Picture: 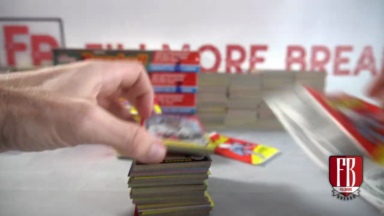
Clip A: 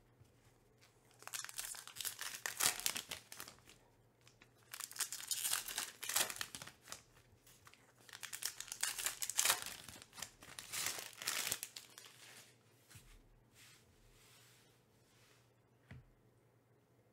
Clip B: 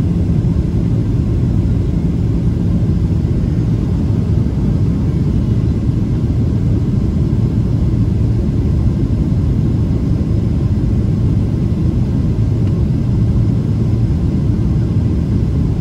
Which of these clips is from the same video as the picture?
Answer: A